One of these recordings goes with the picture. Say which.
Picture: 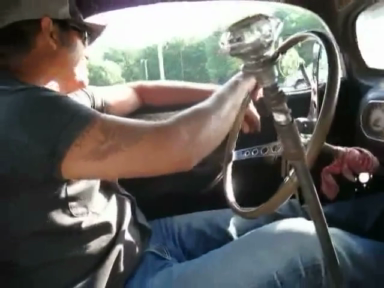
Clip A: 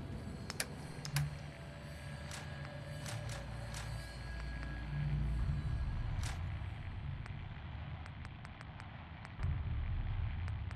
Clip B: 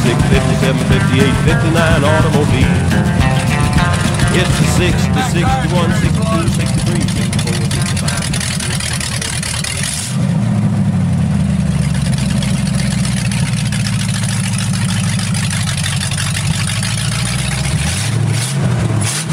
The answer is B